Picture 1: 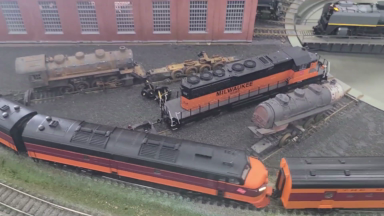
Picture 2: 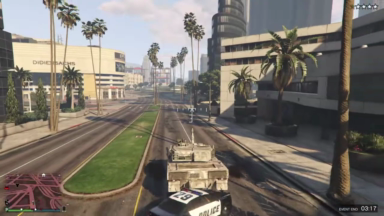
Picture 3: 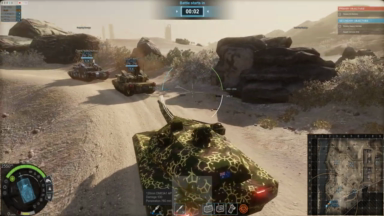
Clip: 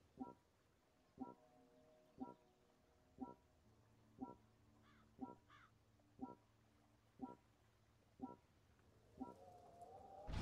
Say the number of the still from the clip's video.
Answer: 3